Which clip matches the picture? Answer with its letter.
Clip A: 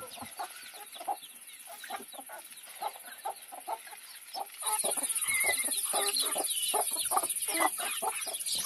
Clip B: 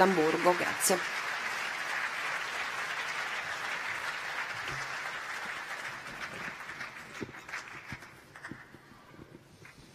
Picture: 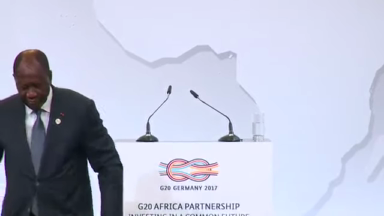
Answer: B